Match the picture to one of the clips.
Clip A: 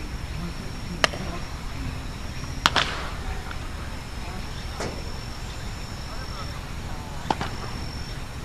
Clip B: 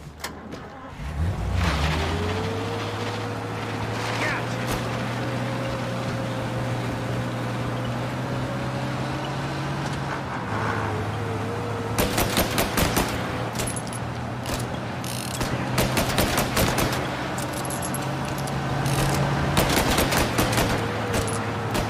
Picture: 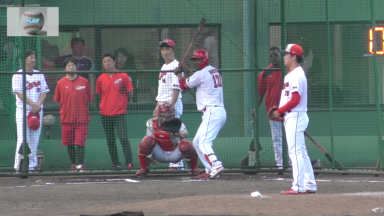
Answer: A